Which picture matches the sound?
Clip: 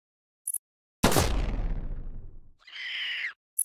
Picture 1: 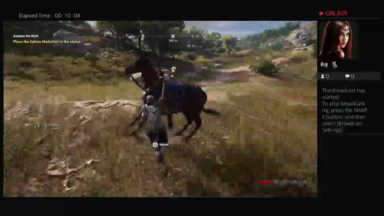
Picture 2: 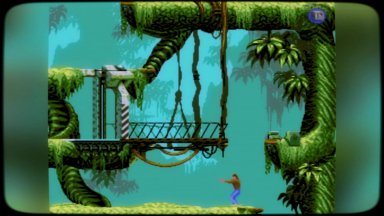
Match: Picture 2